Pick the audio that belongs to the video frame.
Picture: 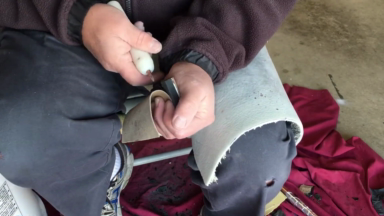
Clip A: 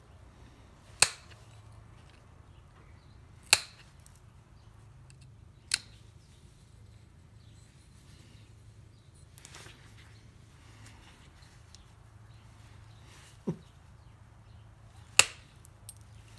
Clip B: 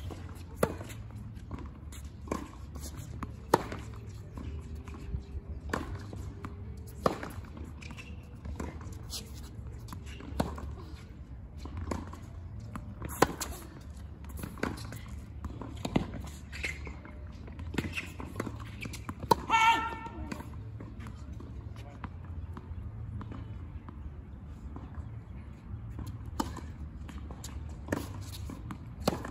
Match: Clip A